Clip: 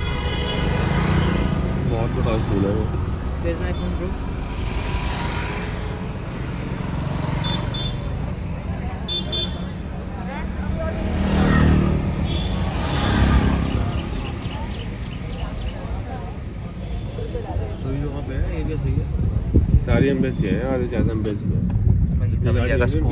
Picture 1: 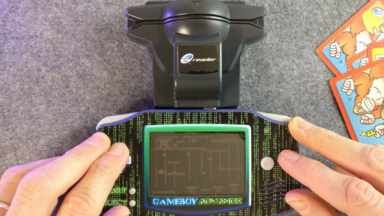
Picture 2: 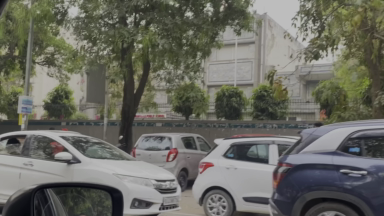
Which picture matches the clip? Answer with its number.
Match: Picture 2